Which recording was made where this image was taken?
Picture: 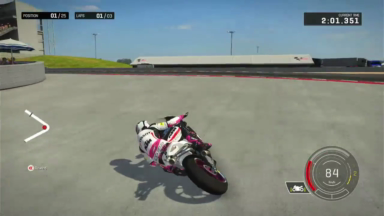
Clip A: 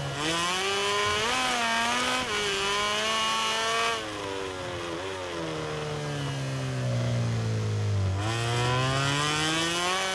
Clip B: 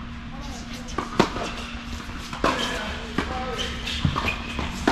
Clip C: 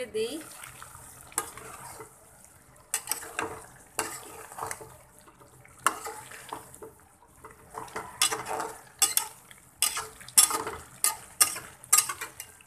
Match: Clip A